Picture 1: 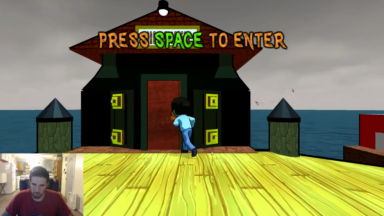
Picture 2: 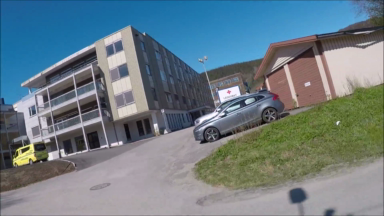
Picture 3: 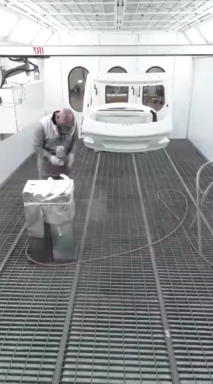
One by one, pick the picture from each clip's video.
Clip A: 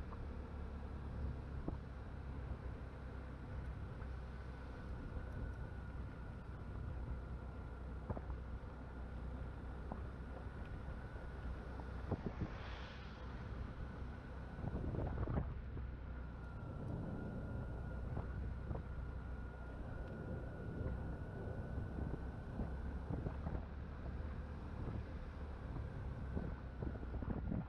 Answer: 2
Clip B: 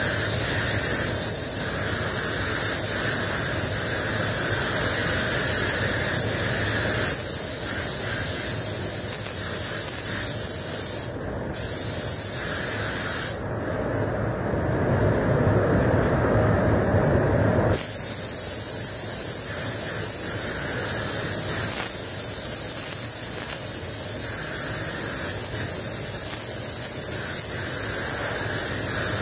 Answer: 3